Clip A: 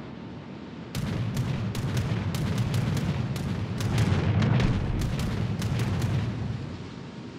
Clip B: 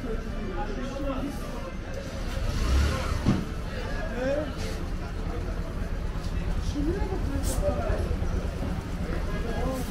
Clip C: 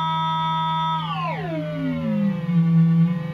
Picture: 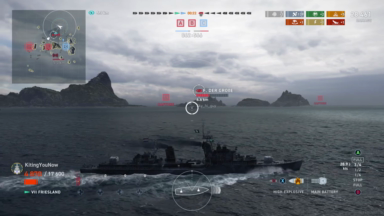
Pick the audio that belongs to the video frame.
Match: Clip A